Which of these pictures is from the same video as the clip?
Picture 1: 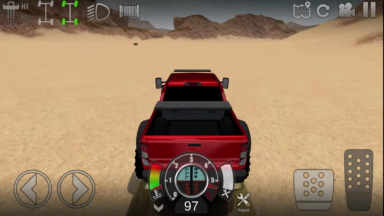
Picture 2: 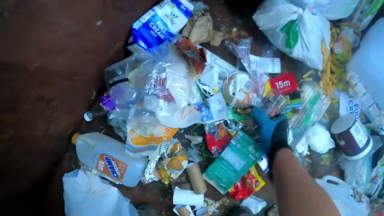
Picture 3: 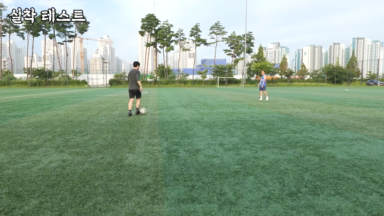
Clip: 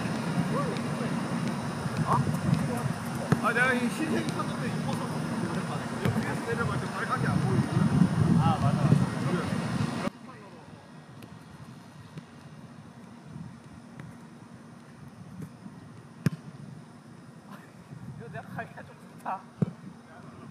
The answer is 3